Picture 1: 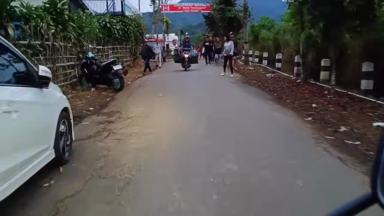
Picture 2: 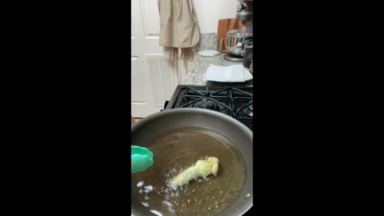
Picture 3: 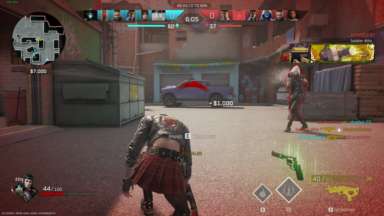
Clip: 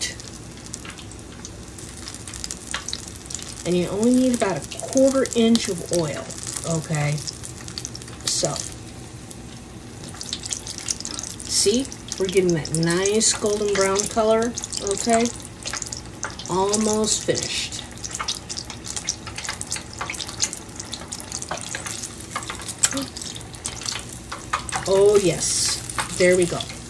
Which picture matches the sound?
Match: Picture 2